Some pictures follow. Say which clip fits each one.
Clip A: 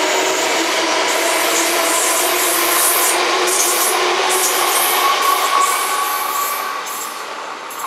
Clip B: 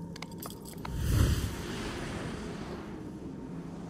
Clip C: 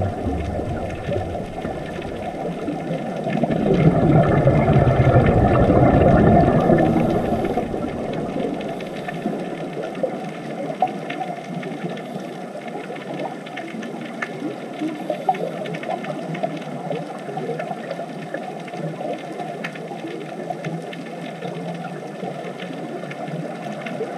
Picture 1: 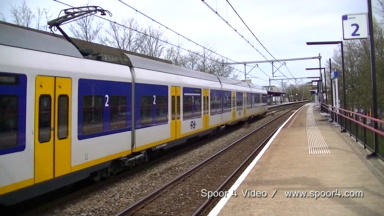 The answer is A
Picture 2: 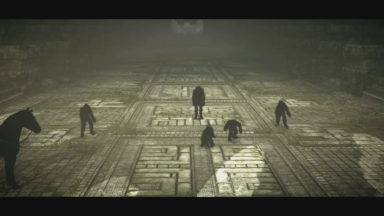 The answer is B